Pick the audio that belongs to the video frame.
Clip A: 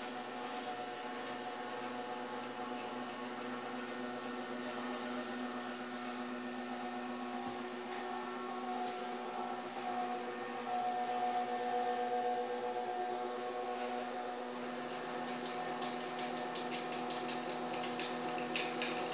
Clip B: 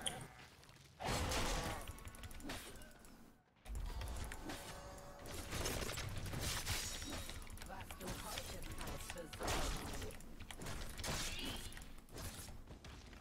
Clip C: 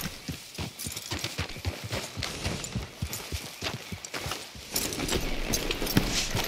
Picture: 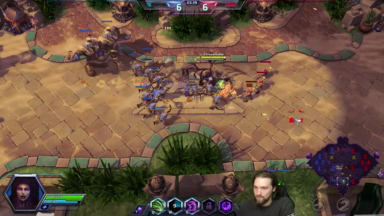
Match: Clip B